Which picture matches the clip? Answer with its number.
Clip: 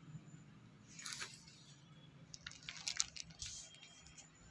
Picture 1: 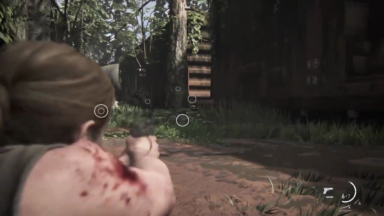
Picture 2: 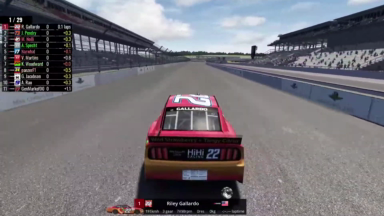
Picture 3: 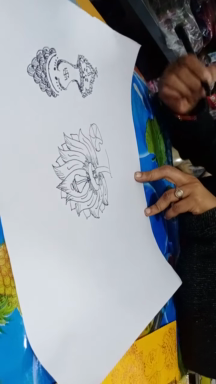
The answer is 3